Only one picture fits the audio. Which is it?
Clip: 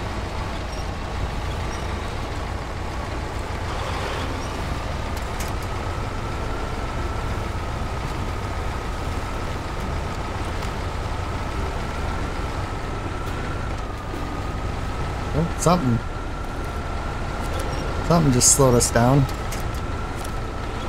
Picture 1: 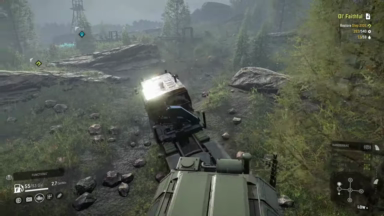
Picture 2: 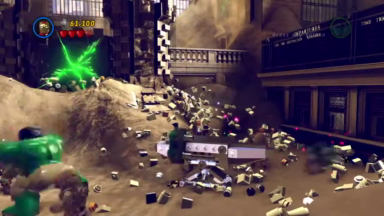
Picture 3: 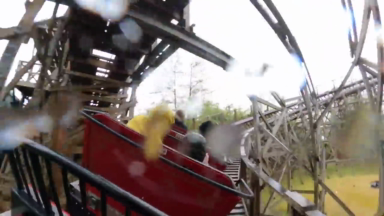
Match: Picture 1